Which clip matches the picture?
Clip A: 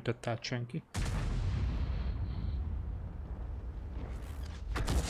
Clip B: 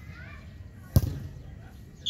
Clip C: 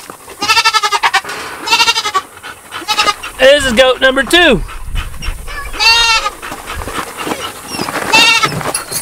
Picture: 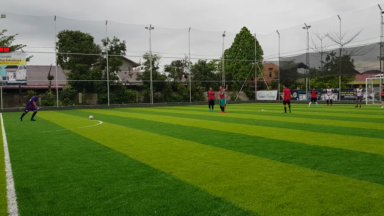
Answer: B